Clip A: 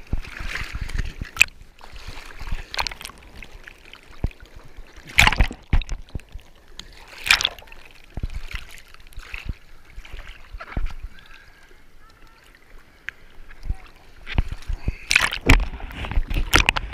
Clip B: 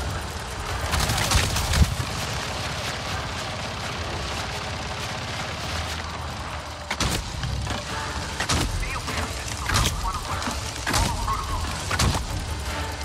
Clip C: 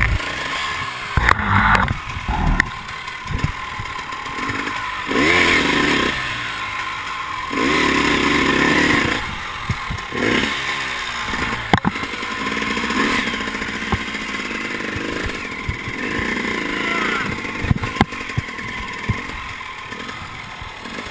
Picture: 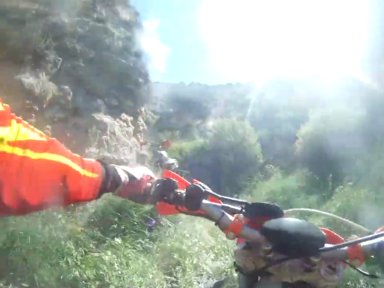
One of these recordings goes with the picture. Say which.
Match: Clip C